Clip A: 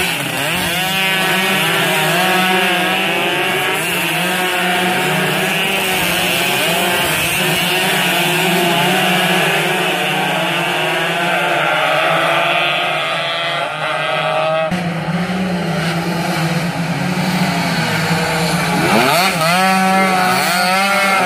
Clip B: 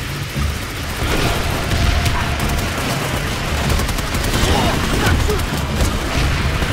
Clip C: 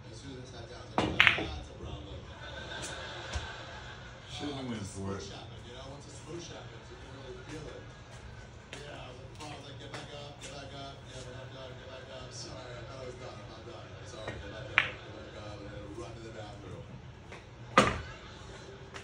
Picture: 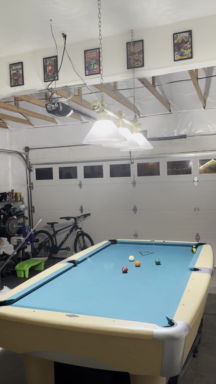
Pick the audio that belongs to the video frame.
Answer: C